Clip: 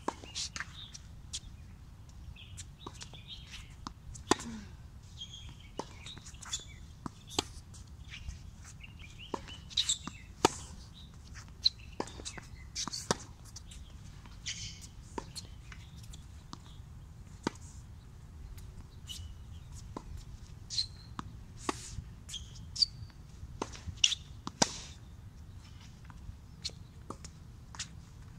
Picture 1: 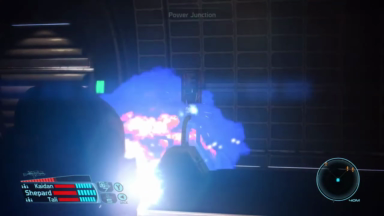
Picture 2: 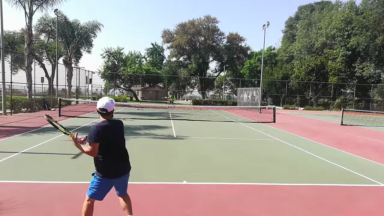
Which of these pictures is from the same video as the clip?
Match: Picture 2